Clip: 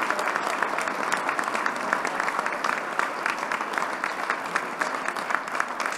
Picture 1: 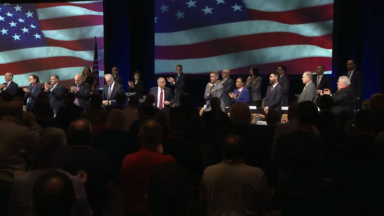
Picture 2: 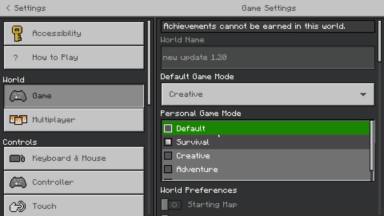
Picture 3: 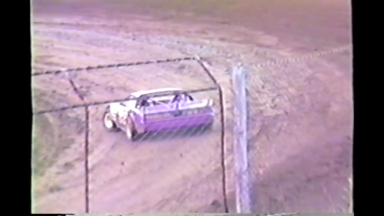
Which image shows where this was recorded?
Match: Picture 1